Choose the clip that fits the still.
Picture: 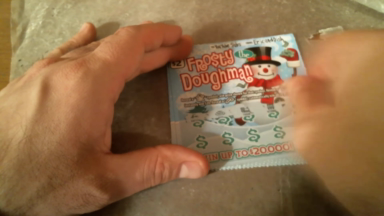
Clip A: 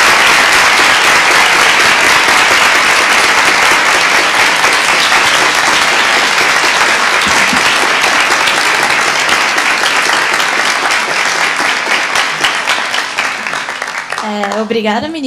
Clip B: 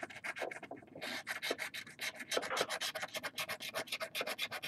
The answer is B